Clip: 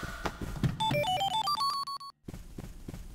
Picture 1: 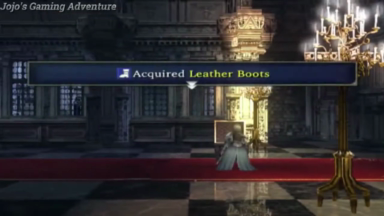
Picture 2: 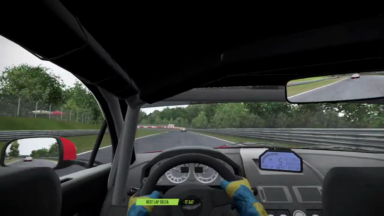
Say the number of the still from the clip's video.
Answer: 1